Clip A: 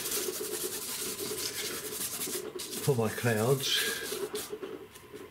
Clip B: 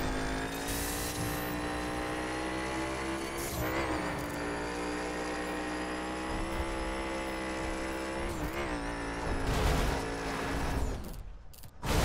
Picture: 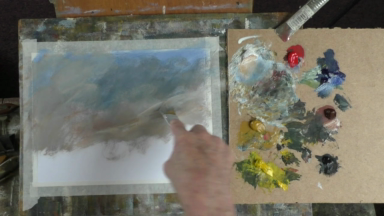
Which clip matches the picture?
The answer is A